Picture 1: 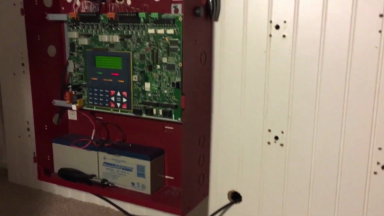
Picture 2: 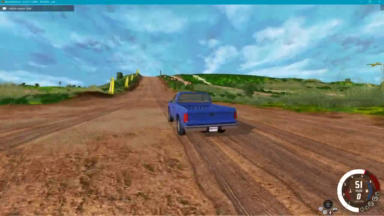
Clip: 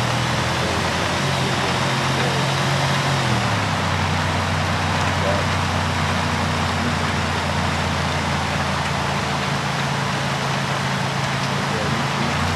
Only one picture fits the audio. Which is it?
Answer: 2